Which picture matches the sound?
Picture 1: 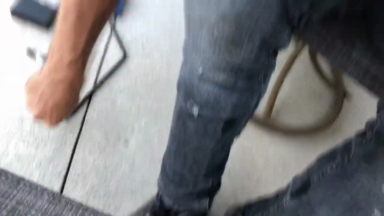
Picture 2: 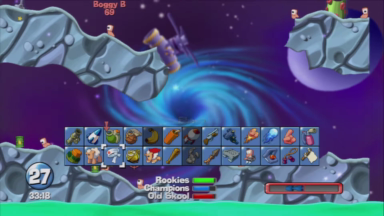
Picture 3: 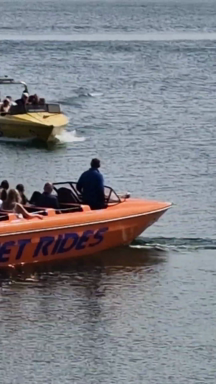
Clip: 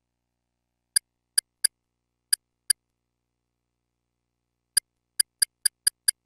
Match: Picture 2